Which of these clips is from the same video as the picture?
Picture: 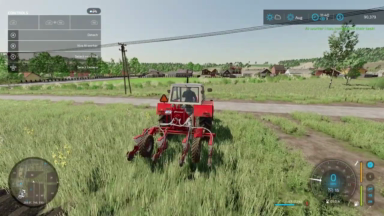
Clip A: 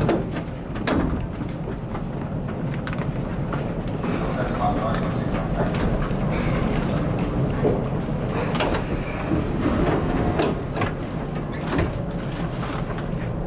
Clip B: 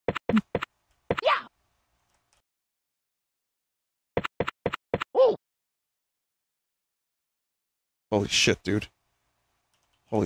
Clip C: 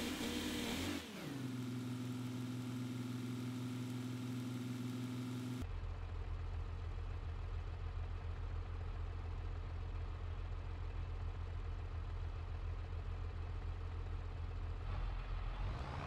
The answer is C